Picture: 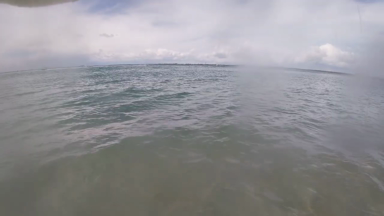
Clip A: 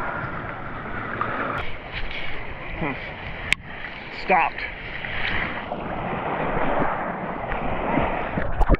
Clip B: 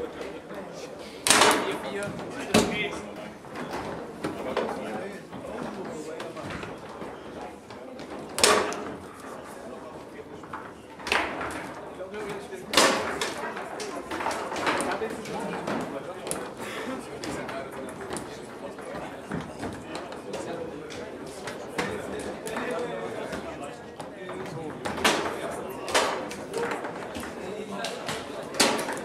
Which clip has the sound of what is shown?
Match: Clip A